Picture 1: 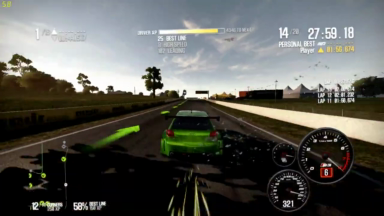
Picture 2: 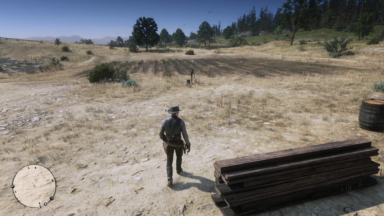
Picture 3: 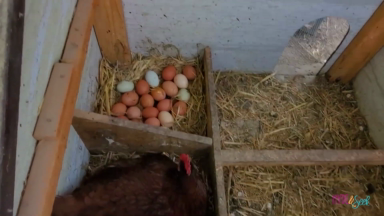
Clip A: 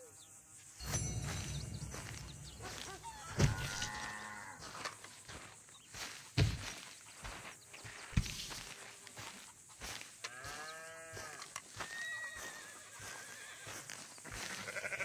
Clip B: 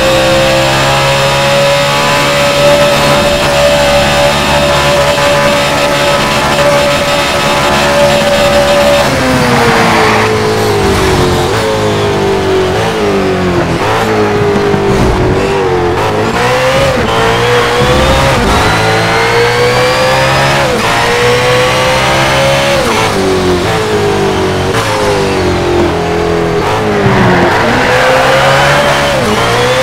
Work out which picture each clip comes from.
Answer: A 2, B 1